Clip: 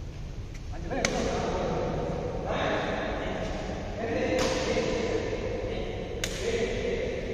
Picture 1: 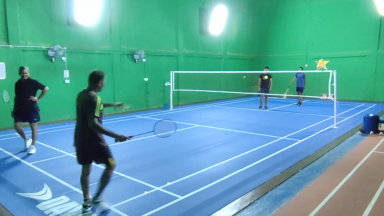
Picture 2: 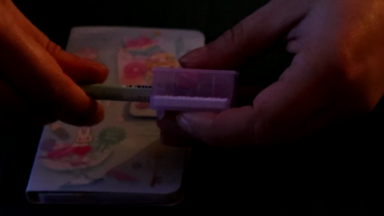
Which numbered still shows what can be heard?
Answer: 1